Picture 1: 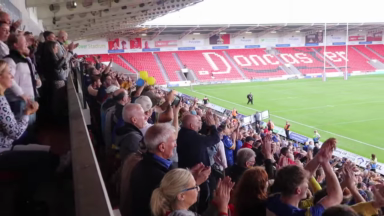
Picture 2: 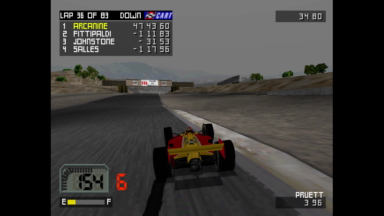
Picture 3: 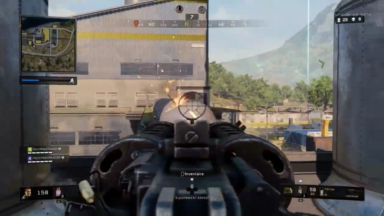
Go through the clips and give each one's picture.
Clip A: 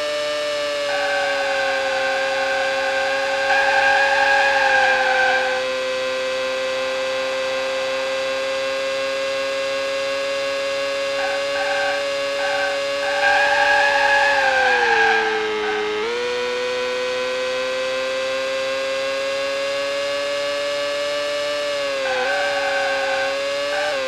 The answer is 2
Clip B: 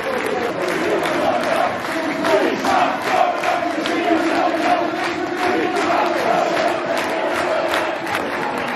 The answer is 1